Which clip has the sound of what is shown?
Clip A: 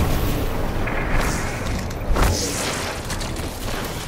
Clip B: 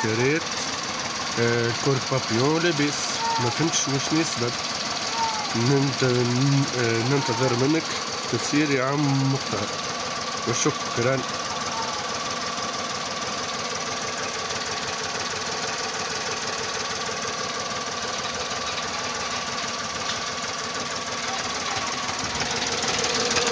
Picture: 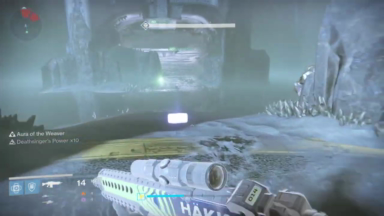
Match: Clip A